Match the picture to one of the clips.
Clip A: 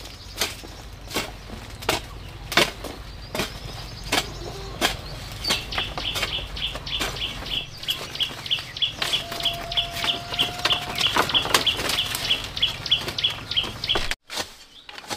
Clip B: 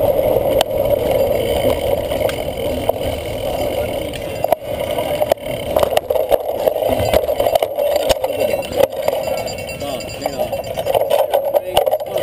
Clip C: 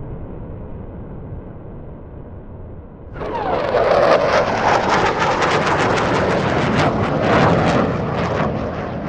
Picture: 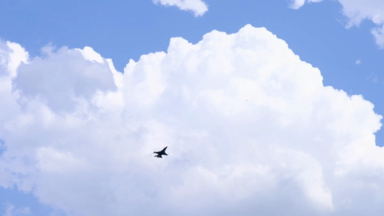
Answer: C